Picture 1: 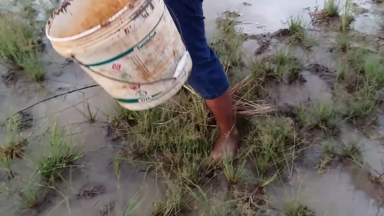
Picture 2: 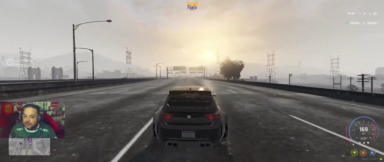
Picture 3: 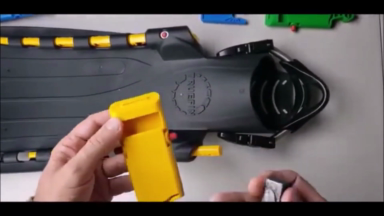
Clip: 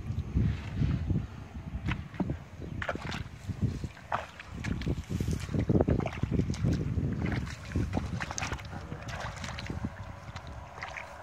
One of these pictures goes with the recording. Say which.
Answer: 1